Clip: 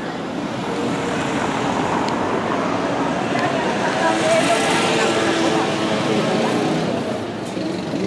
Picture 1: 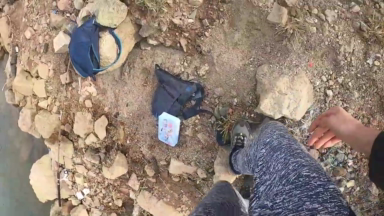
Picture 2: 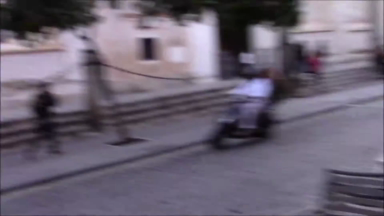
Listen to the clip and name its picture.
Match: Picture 2